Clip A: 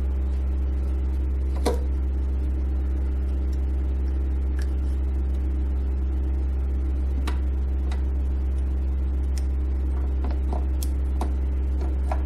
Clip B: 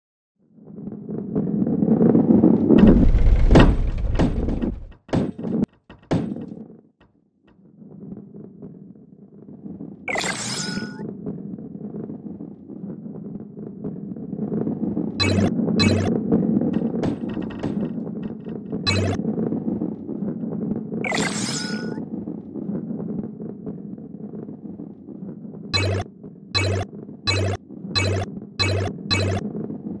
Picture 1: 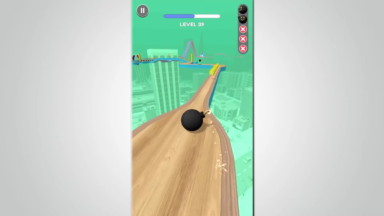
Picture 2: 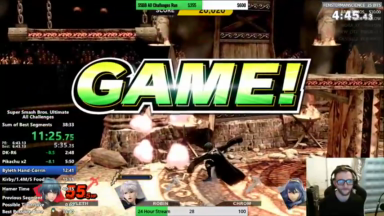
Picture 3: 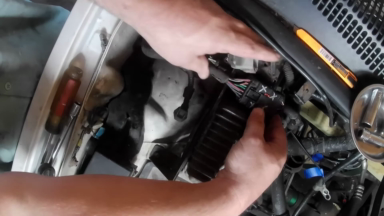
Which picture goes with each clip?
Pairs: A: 3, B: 1